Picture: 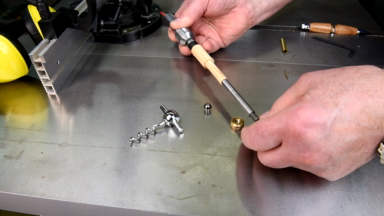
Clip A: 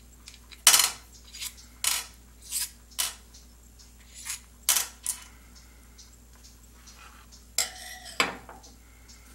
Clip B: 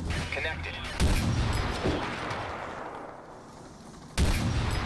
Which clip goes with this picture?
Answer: A